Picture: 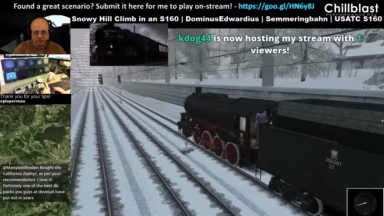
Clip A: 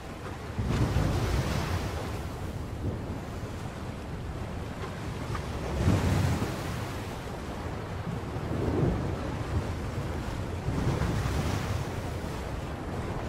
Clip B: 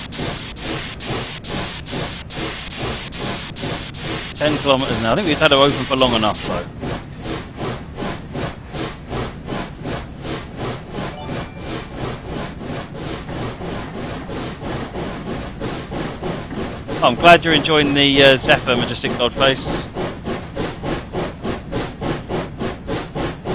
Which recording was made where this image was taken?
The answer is B